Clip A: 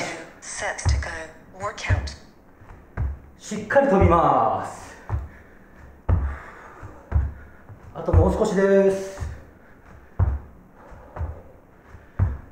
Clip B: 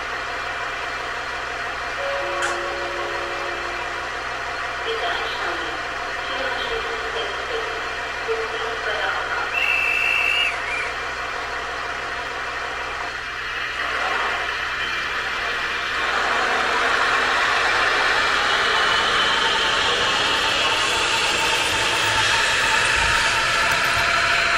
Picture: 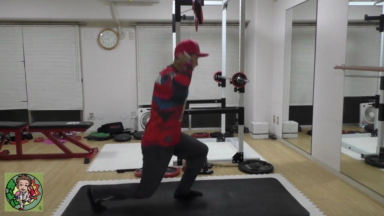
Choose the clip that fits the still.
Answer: A